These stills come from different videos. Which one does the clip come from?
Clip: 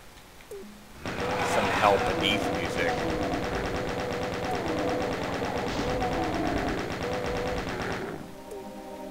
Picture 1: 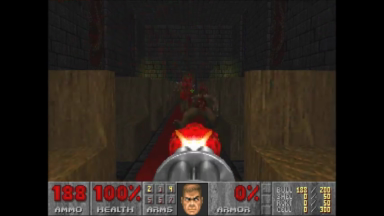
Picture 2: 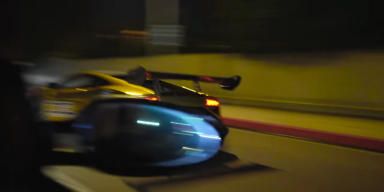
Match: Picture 1